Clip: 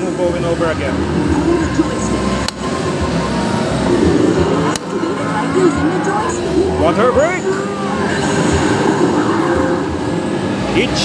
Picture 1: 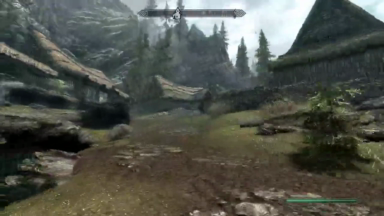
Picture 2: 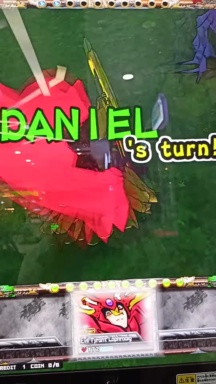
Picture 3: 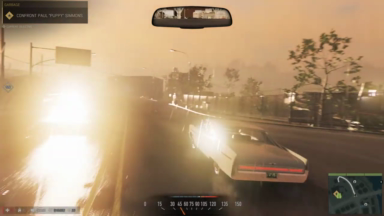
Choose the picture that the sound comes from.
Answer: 2